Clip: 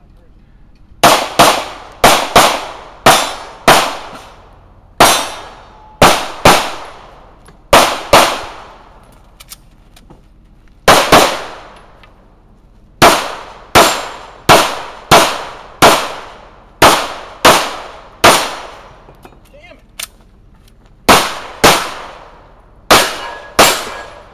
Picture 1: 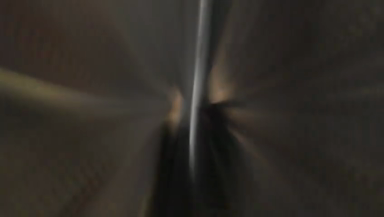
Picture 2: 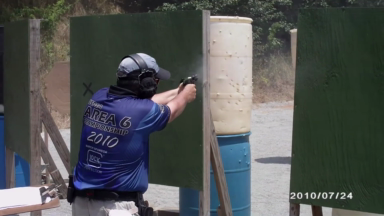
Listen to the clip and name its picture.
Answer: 2